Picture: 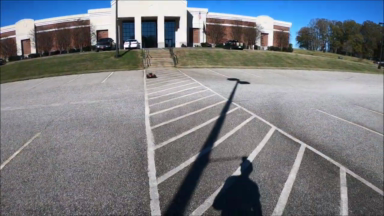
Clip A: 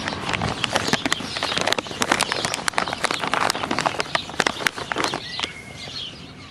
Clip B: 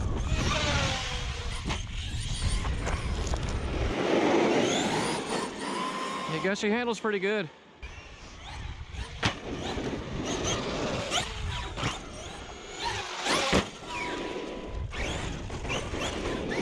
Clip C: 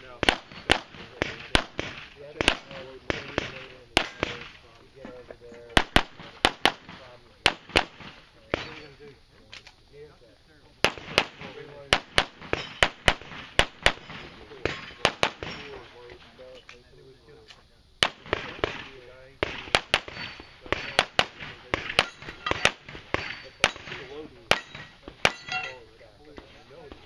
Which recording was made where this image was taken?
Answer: B